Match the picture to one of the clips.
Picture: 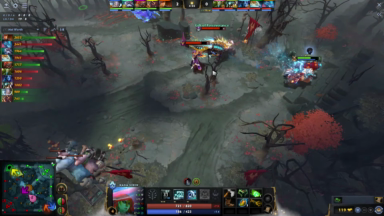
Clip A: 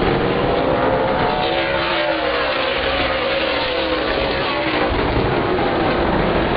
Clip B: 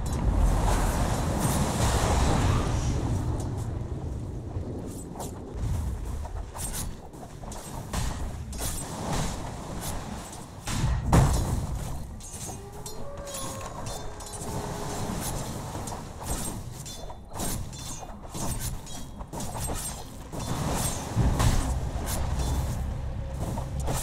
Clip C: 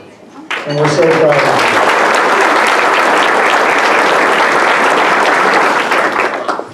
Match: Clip B